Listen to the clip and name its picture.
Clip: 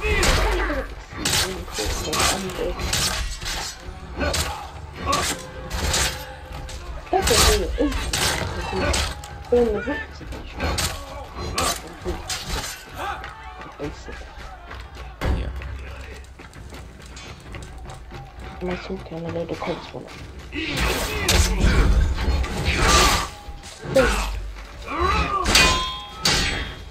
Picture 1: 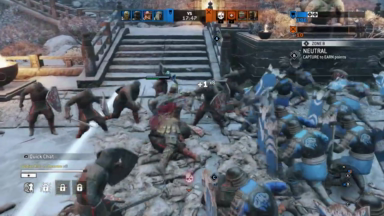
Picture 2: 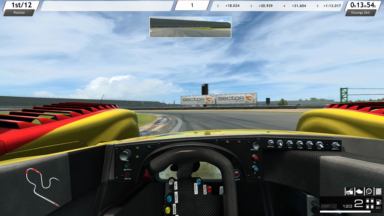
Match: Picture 1